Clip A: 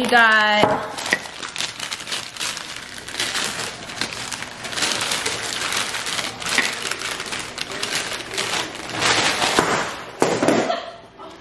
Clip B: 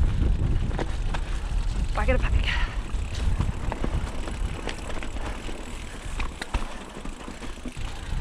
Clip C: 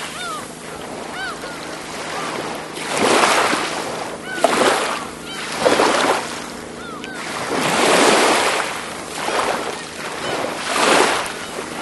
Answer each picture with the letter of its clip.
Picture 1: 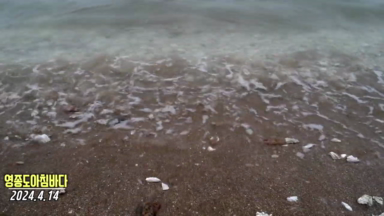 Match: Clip C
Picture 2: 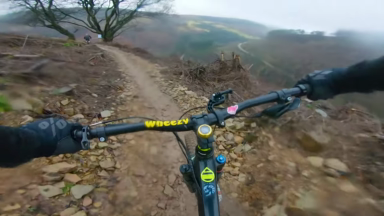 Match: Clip B